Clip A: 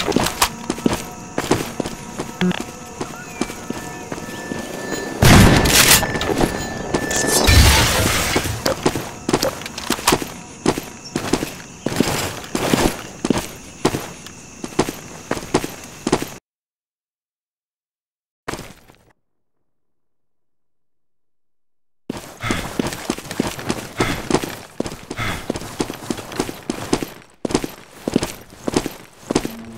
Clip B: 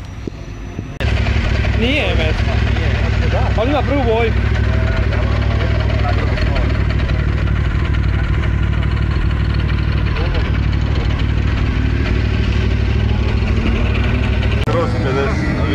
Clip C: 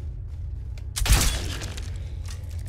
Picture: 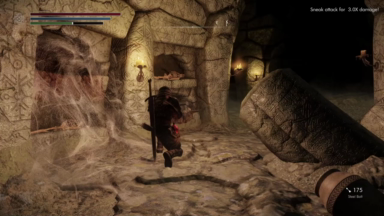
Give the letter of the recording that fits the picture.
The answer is C